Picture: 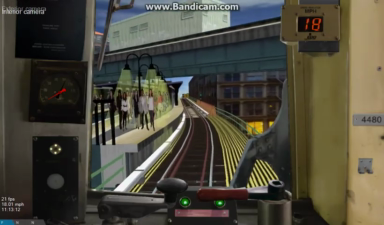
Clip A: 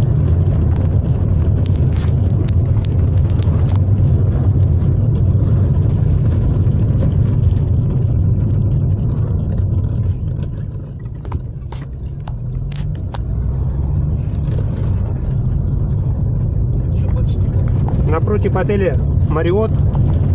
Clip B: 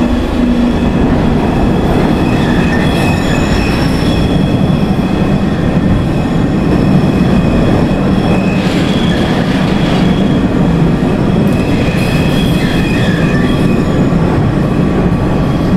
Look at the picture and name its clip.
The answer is B